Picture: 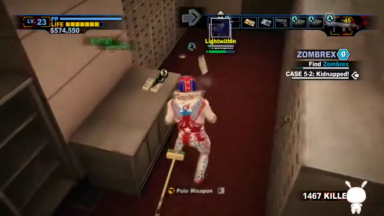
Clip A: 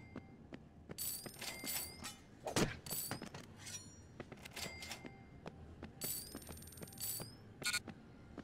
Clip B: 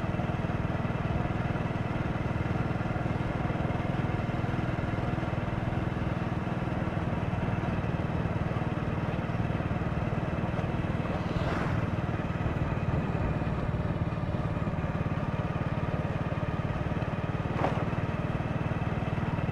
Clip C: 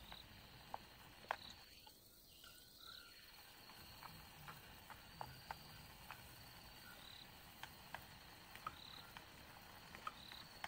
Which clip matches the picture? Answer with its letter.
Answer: A